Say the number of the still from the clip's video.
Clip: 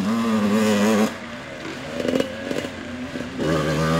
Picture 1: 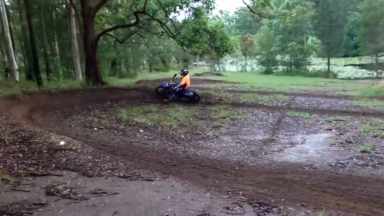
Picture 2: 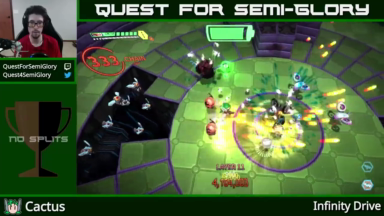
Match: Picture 1